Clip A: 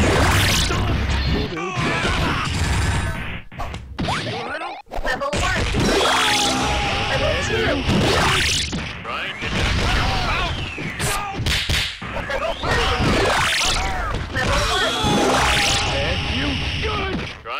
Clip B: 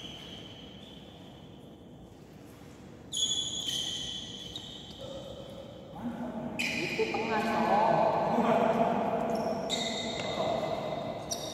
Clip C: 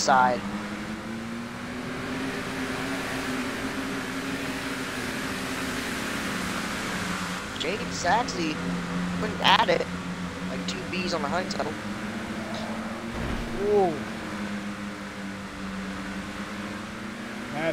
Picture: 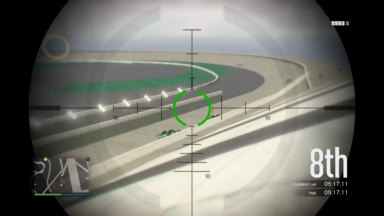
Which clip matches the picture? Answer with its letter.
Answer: C